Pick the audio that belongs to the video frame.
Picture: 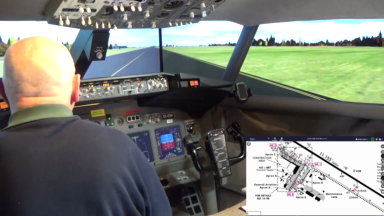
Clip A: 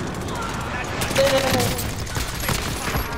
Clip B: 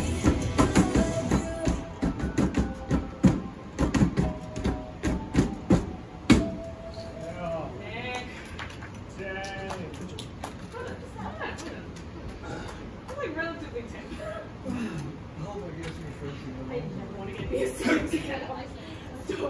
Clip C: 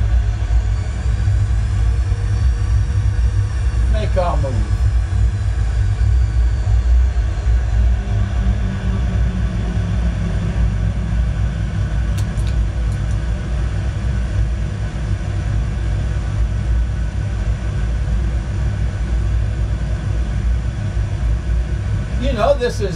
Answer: C